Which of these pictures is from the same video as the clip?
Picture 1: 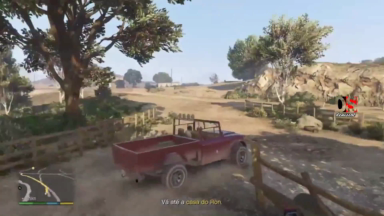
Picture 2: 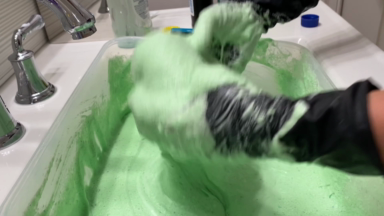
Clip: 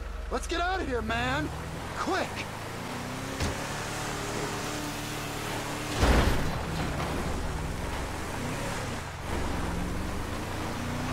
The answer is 1